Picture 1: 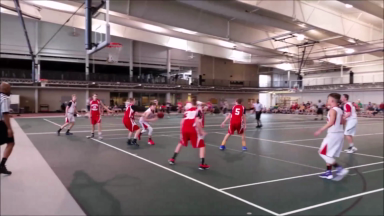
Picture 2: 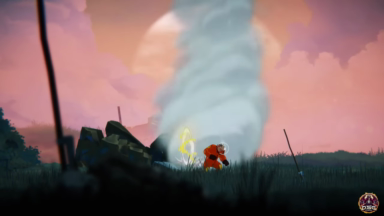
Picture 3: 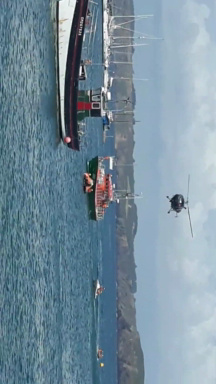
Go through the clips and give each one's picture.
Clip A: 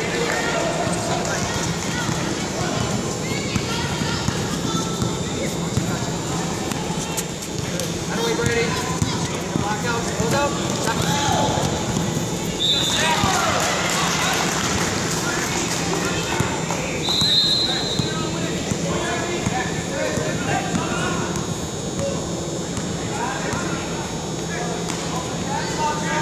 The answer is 1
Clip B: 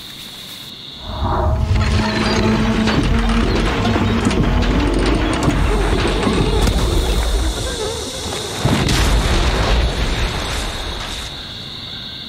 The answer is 2